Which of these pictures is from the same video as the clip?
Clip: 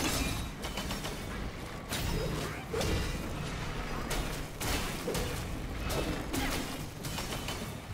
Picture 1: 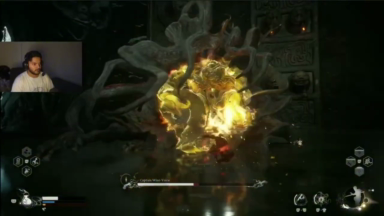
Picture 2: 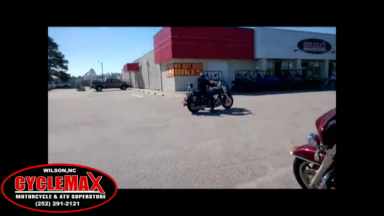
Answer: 1